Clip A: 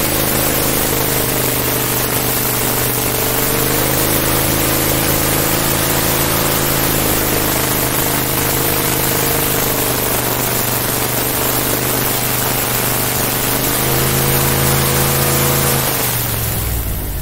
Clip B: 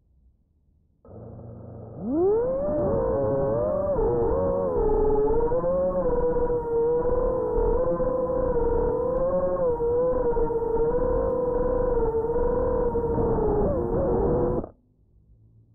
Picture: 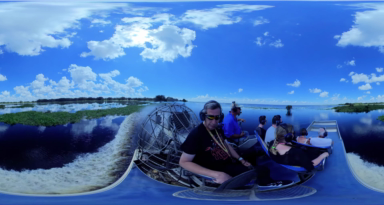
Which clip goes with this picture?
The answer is A